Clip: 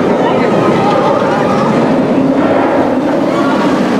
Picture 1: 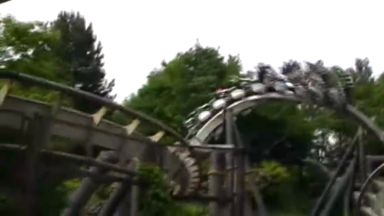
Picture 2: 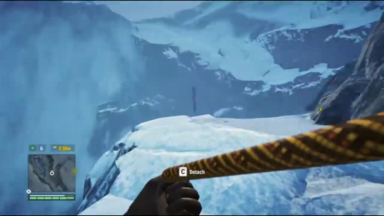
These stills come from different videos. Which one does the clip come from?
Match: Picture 1